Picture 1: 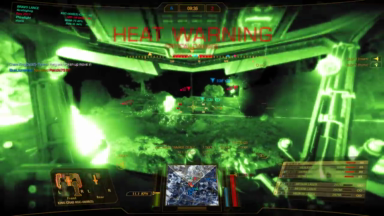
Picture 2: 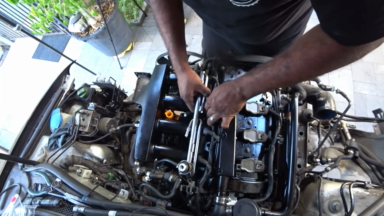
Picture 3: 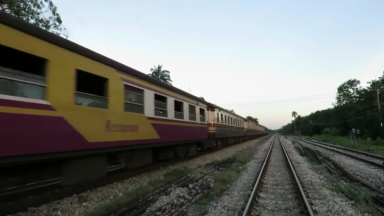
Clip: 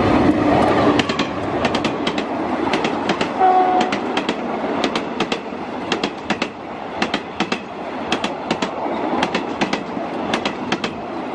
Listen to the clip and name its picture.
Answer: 3